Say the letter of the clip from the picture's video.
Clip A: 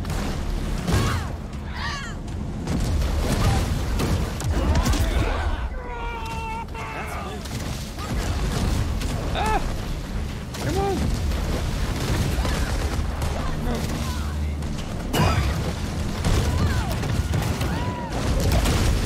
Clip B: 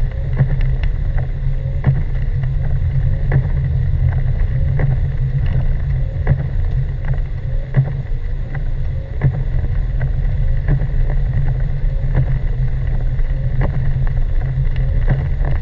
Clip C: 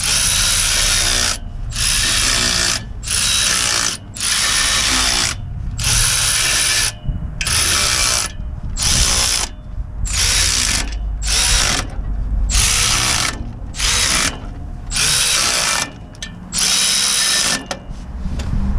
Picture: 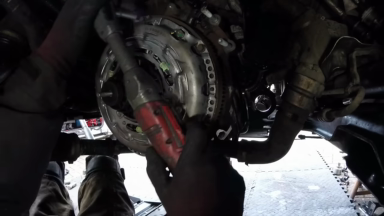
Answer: C